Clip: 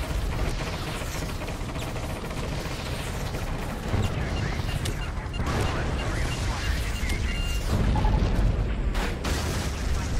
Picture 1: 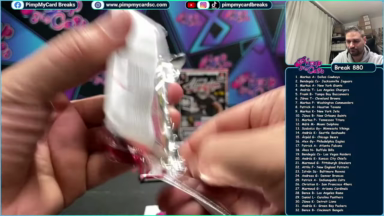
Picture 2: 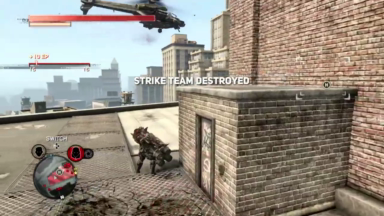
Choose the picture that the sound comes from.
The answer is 2